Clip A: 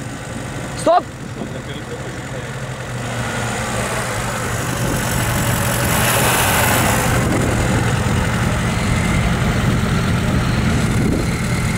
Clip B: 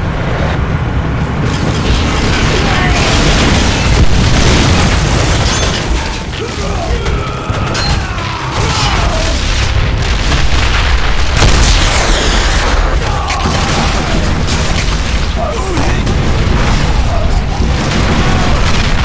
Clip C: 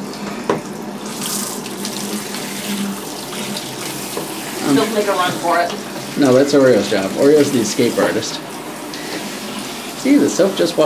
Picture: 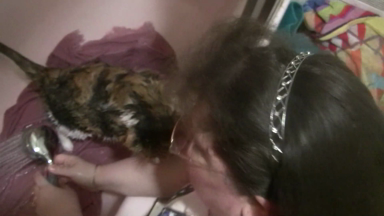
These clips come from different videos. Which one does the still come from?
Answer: C